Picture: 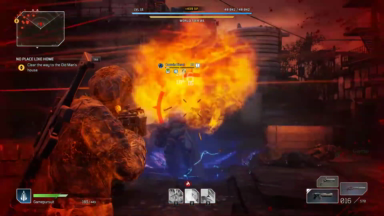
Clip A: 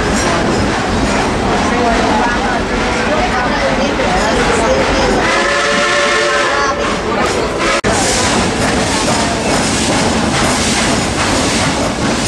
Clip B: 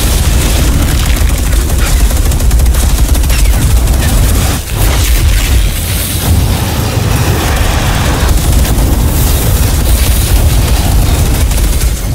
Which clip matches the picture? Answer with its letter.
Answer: B